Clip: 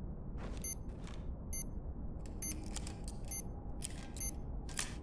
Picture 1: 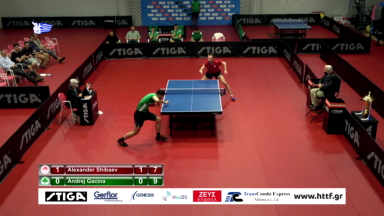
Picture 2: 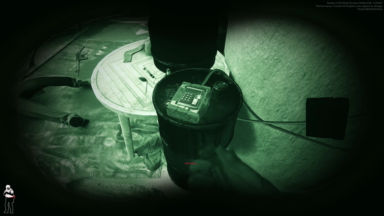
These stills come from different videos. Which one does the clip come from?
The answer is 2